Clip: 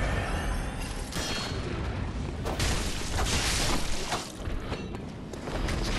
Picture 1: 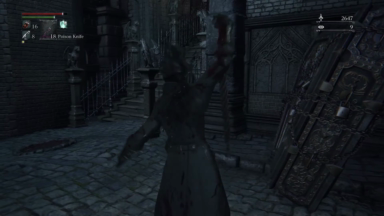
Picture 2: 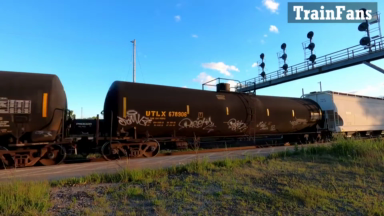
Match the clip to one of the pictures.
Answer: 1